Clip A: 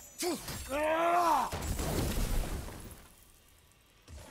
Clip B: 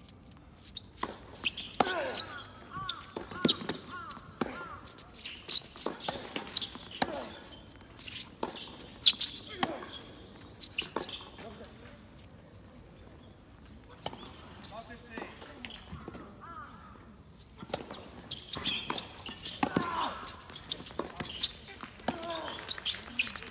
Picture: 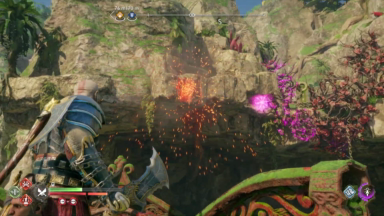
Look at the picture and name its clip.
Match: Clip A